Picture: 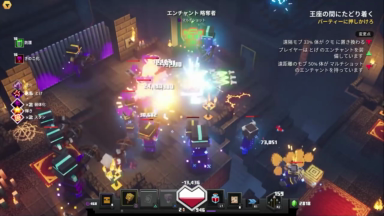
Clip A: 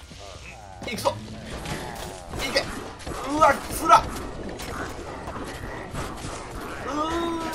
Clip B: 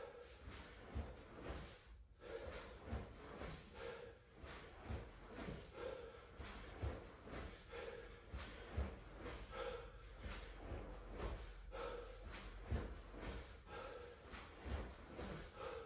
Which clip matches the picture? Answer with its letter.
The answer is A